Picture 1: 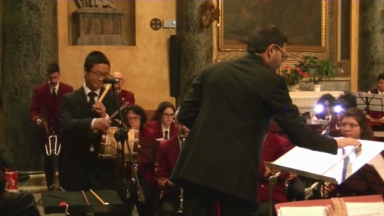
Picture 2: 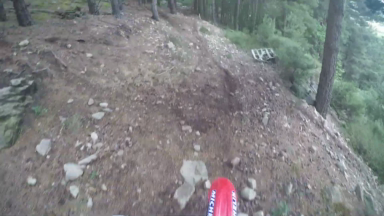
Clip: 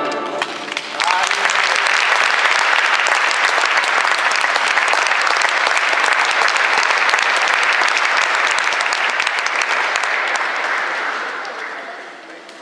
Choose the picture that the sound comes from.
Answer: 1